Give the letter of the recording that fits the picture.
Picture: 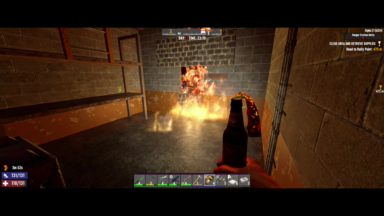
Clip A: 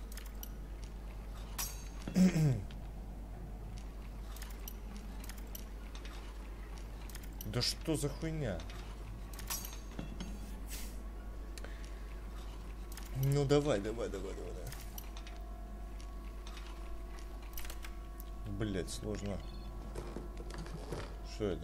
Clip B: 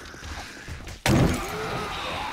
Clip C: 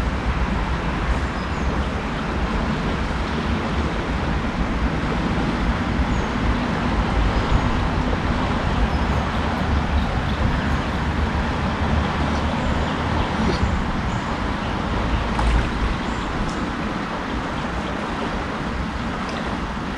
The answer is B